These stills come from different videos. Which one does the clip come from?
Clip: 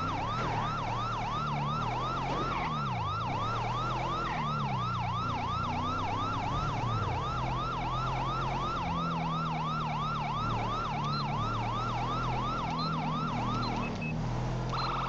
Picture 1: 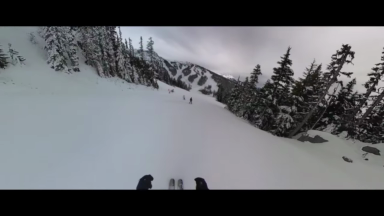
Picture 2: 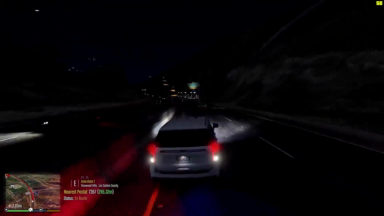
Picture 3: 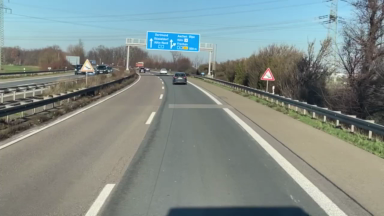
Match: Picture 2